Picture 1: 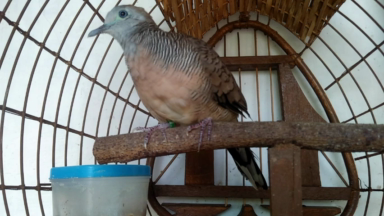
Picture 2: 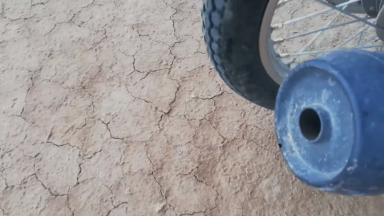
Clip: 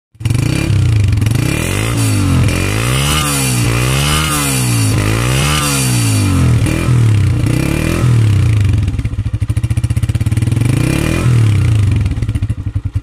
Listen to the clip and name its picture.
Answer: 2